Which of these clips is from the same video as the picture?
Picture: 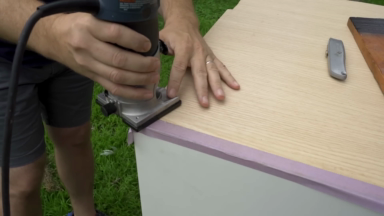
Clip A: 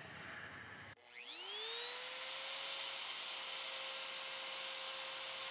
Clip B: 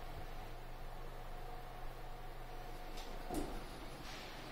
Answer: A